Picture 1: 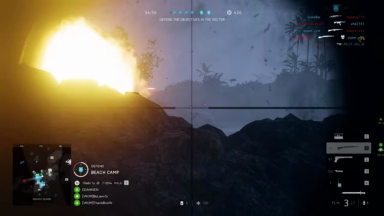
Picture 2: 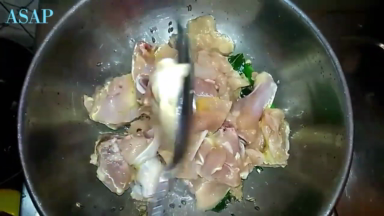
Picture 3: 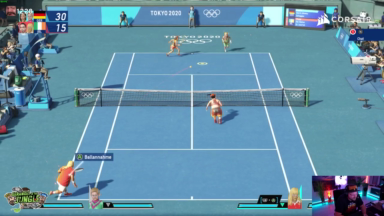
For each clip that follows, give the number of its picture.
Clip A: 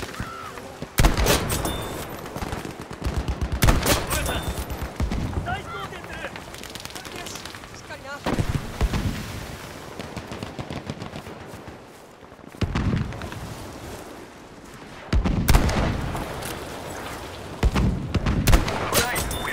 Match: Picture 1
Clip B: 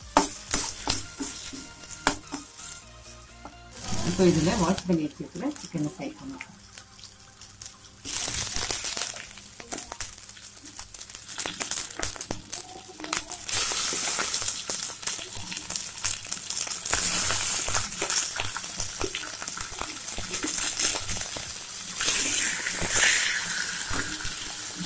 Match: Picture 2